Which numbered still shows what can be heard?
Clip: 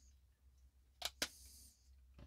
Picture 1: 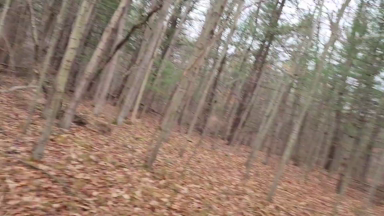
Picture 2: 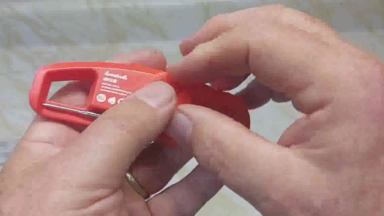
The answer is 2